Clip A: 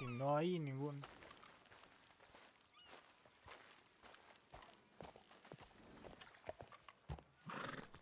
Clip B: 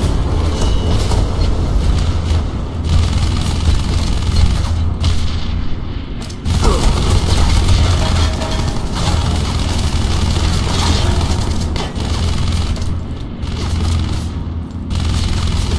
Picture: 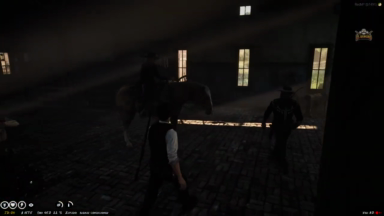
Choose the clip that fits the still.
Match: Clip A